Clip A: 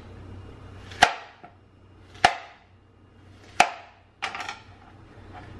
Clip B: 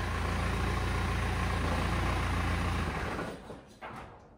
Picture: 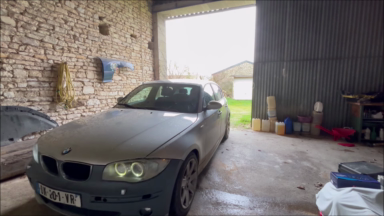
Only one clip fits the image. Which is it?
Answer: B